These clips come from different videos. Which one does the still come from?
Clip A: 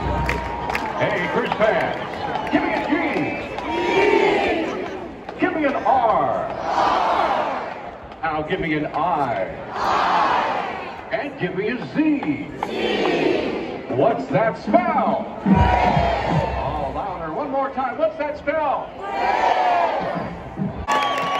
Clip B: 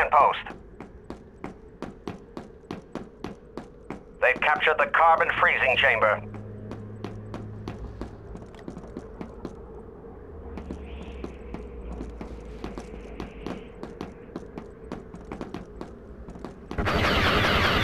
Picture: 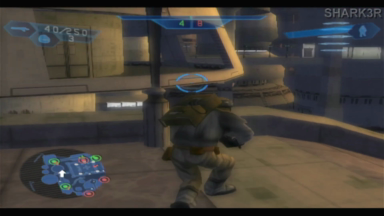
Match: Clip B